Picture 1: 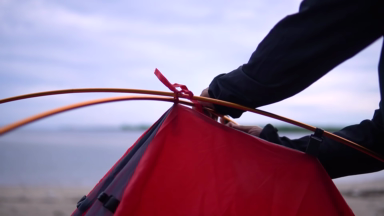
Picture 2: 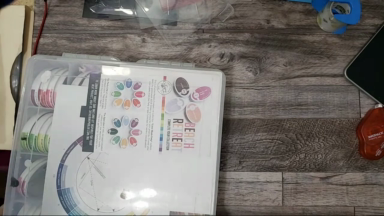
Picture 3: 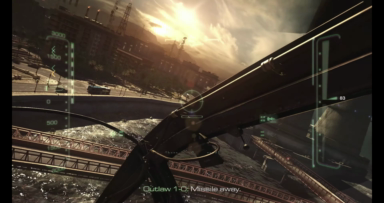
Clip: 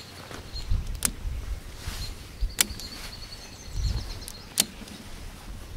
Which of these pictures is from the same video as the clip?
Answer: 1